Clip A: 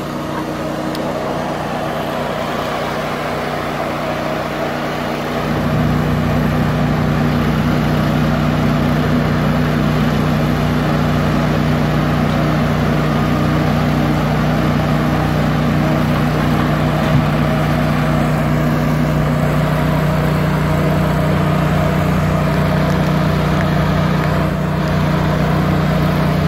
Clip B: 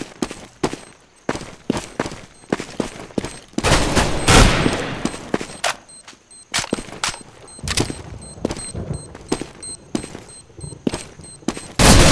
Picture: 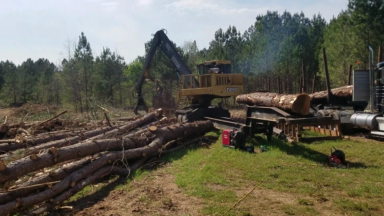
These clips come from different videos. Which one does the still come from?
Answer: A